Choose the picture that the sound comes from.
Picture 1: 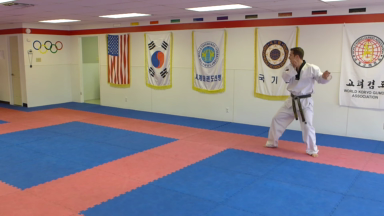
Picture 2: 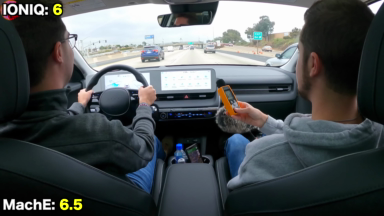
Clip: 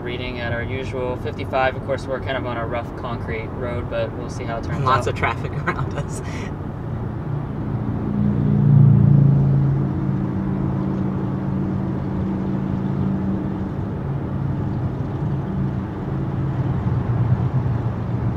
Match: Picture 2